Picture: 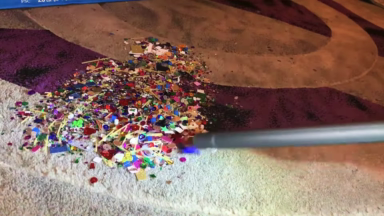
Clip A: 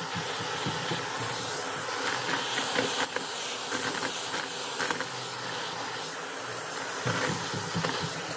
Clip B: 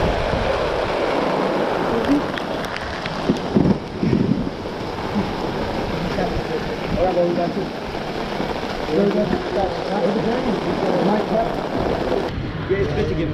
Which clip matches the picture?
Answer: A